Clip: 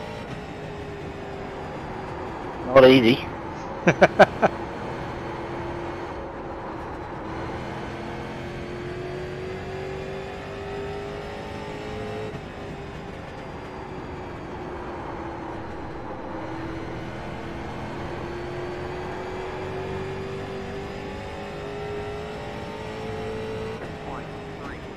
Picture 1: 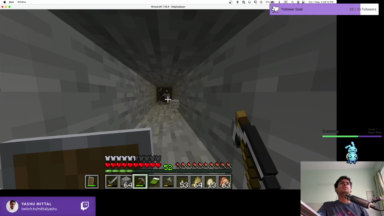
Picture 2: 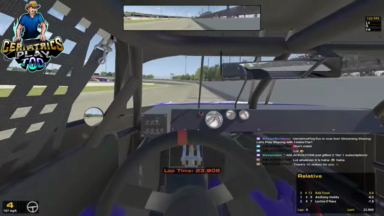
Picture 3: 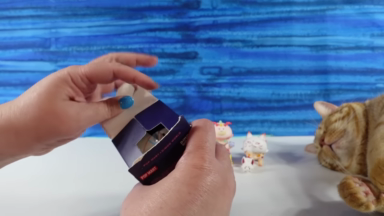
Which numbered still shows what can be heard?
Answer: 2